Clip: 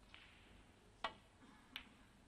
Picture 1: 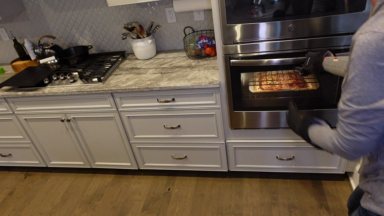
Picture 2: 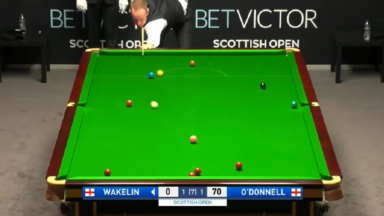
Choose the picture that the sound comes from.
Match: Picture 2